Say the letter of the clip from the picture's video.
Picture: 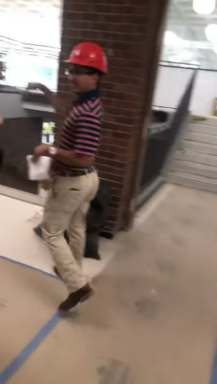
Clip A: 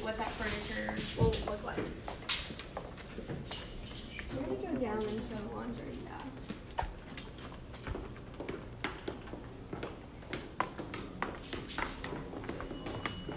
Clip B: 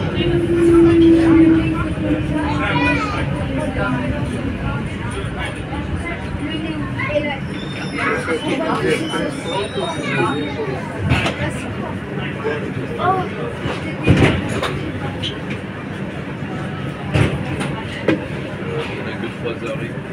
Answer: A